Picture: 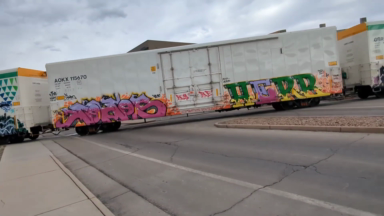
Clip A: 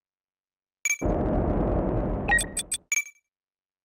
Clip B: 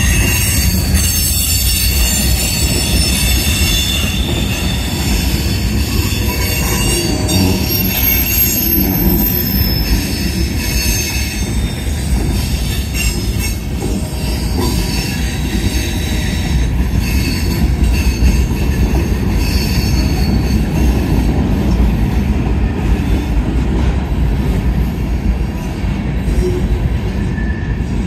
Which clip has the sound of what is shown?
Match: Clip B